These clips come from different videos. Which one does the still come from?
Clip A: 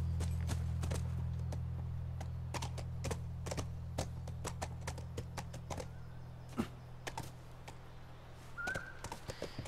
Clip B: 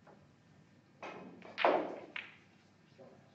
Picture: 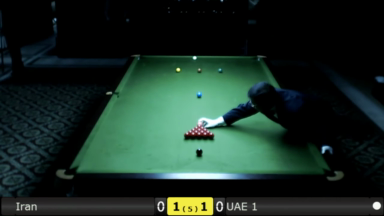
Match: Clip B